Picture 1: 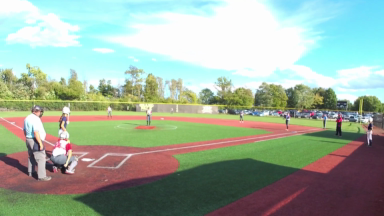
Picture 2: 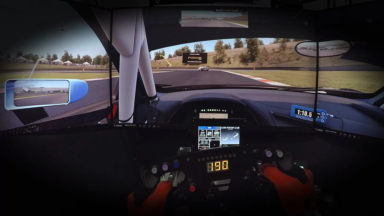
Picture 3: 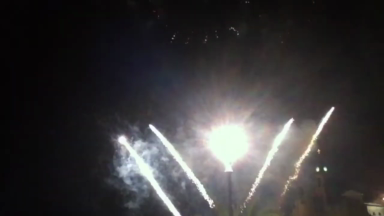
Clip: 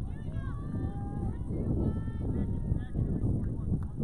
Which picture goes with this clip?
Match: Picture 1